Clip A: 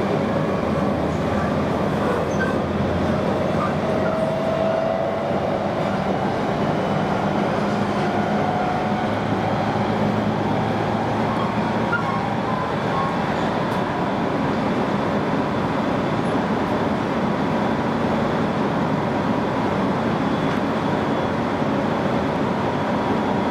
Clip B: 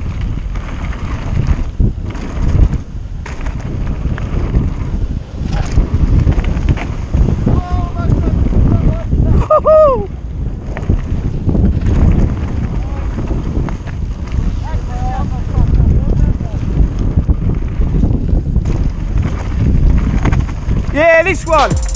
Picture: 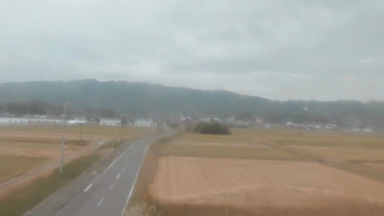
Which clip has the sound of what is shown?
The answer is A